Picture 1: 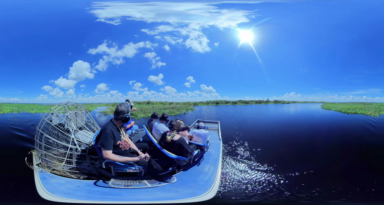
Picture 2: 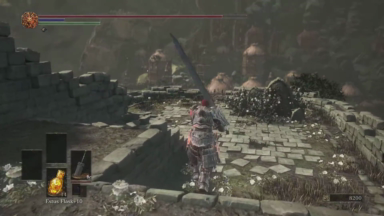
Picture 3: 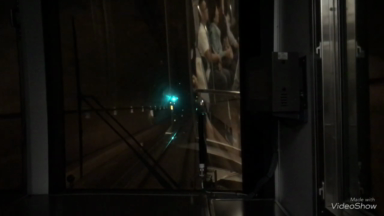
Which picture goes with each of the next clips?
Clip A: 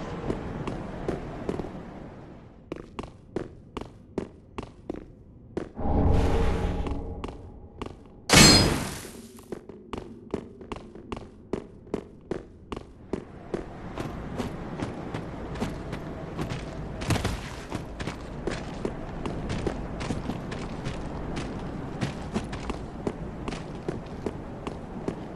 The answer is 2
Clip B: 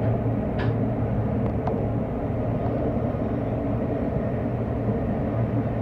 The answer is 3